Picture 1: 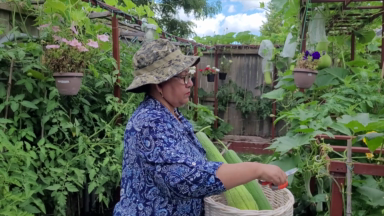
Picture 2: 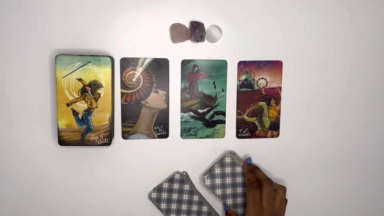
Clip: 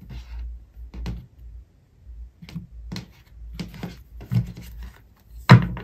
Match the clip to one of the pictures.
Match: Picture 2